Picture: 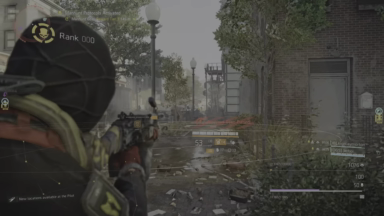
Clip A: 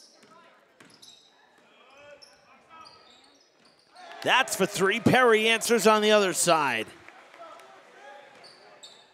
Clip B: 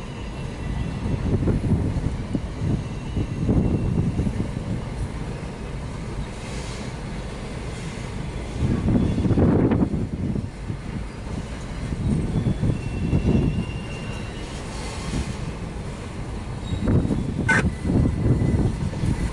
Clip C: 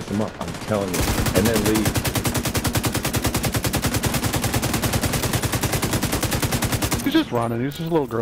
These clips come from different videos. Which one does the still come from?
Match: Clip C